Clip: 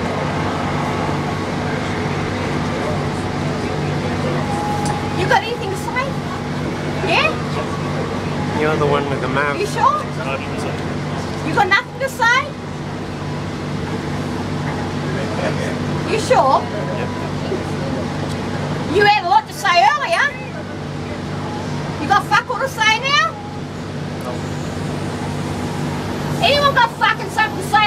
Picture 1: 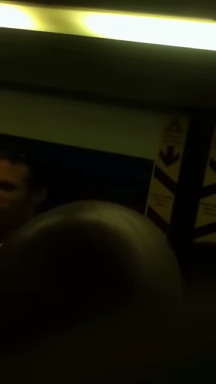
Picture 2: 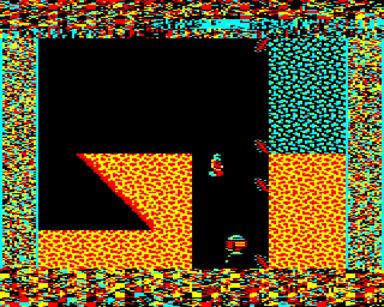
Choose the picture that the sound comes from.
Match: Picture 1